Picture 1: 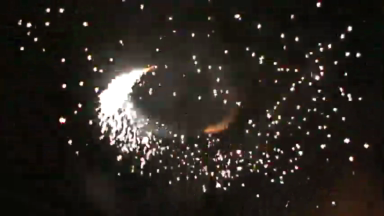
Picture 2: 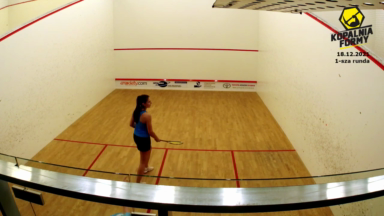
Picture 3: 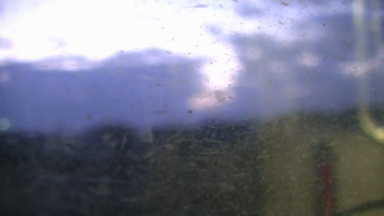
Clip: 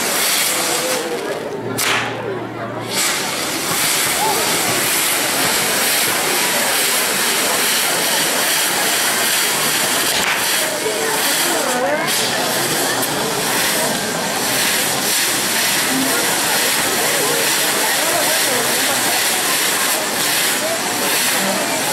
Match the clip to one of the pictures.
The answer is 1